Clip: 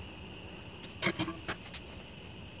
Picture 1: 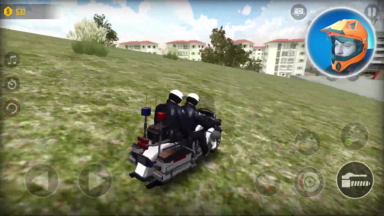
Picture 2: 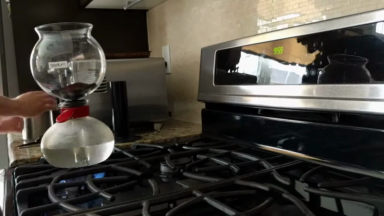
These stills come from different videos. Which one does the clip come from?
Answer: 2